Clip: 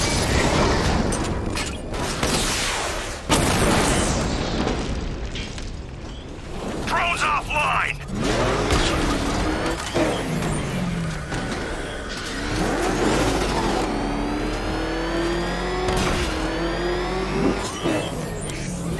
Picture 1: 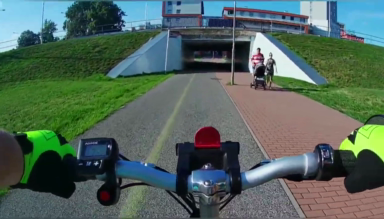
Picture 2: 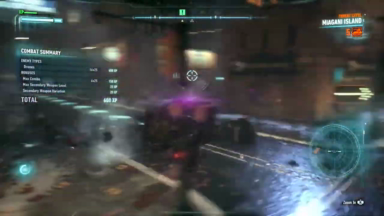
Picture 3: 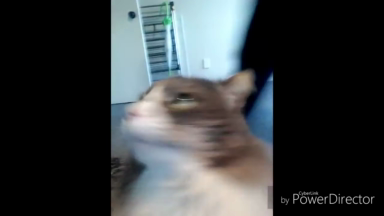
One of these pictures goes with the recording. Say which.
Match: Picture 2